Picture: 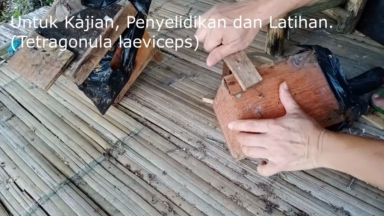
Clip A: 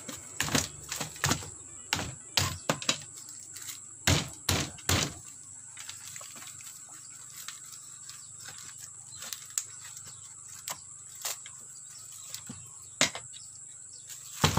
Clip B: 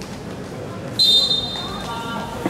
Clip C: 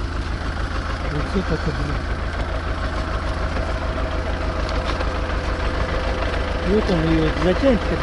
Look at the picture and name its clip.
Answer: A